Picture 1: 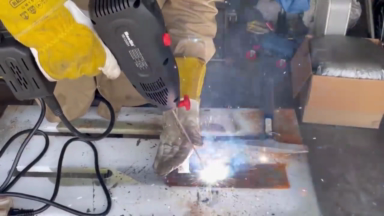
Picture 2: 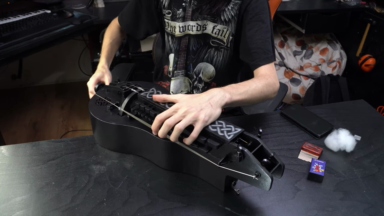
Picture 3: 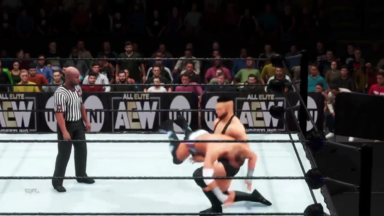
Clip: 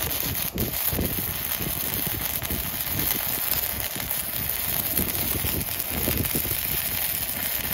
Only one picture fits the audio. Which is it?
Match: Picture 1